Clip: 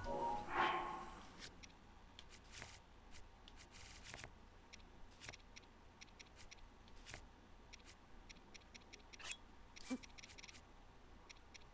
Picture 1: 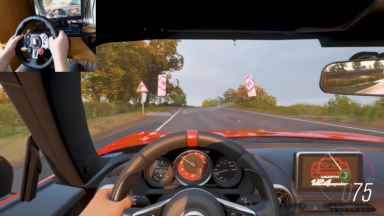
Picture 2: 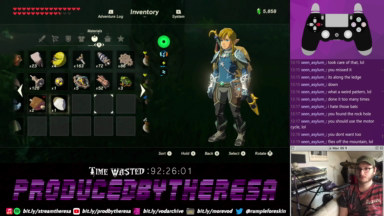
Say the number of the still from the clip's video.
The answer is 2